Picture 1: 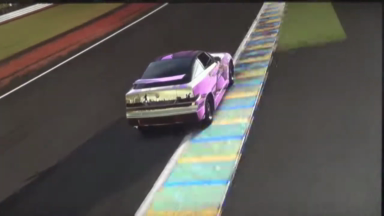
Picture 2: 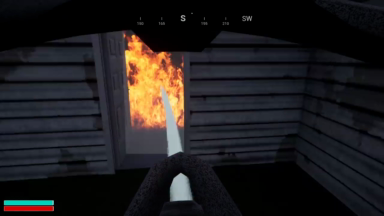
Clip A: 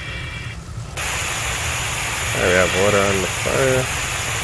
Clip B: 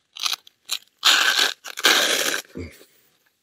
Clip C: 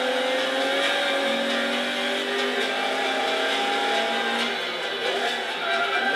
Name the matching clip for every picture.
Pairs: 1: C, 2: A